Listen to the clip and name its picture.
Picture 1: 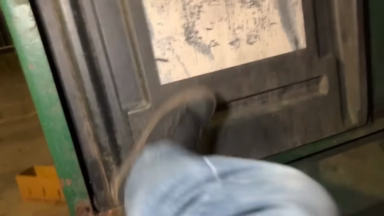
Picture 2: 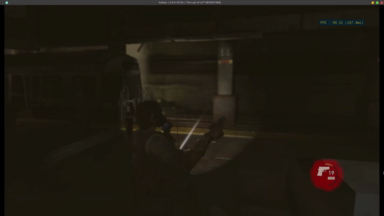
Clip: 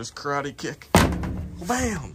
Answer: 1